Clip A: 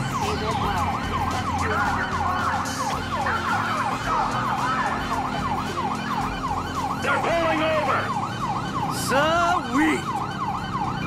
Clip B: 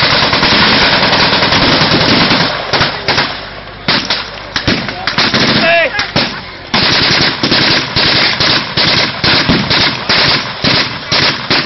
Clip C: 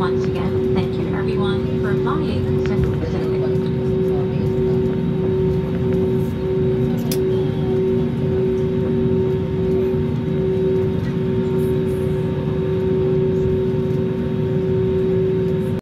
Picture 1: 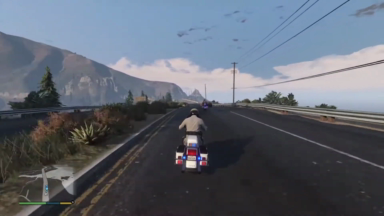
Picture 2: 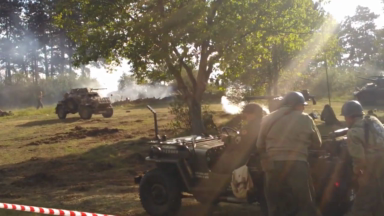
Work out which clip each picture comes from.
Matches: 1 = A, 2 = B